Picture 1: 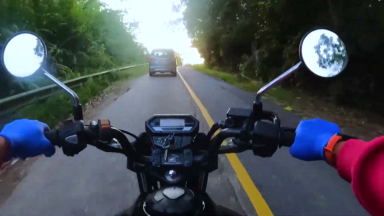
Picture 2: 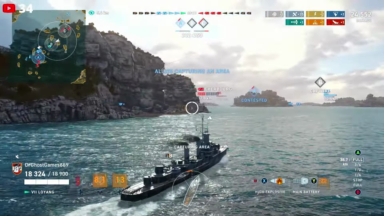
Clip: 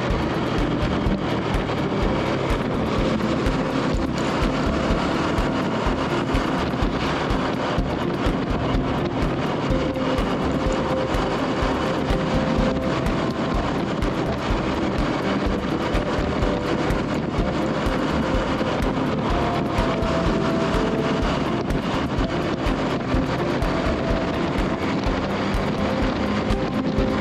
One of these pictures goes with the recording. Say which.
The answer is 1